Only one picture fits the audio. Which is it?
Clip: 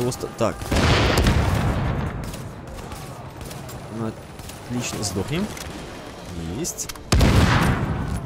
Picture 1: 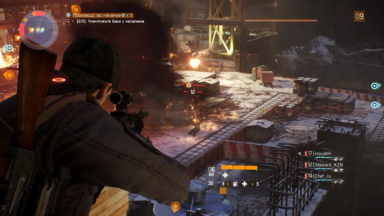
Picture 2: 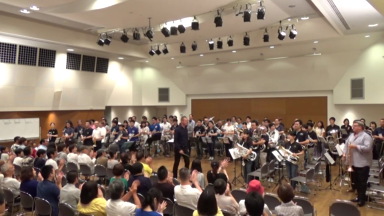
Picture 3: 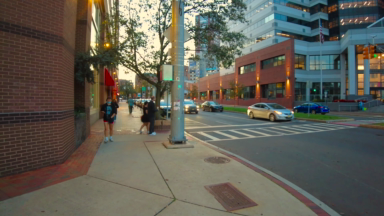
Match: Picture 1